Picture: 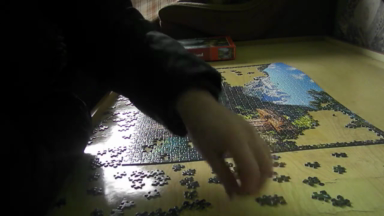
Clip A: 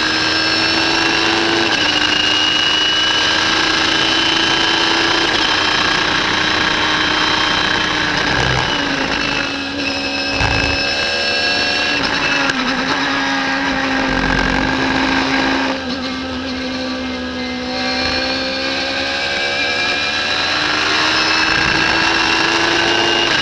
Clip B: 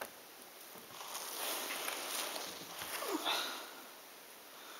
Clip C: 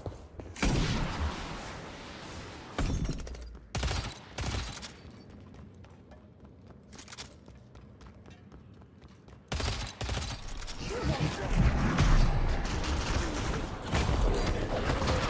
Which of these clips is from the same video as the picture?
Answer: B